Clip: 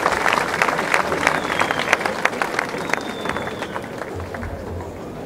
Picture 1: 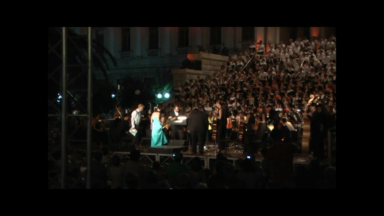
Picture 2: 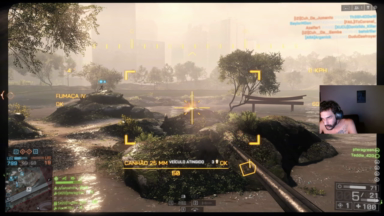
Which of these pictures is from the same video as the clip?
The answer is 1